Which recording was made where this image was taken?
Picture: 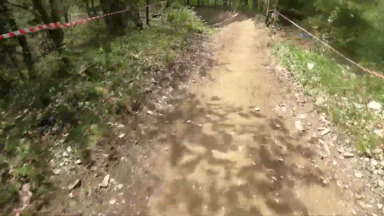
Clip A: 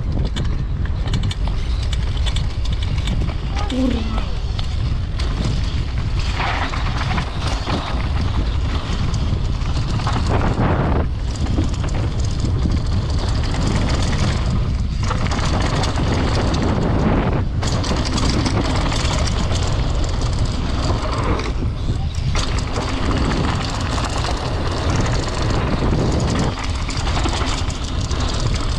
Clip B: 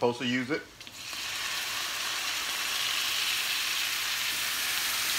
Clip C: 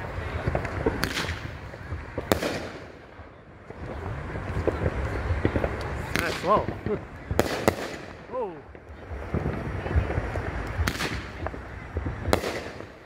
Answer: A